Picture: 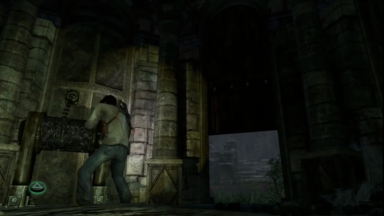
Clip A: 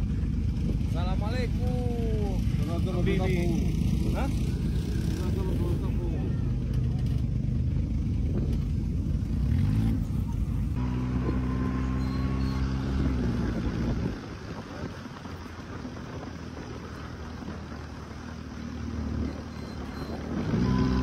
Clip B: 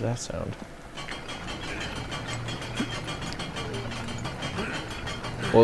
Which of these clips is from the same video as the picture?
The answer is B